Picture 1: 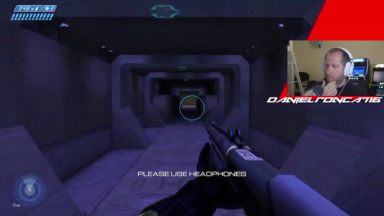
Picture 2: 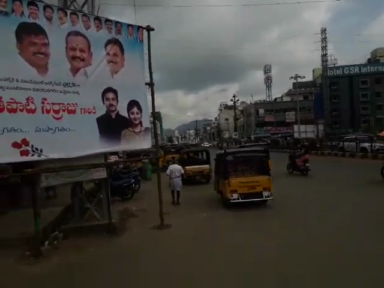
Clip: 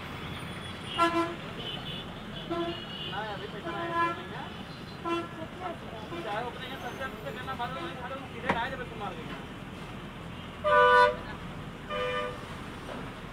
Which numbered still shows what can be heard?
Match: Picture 2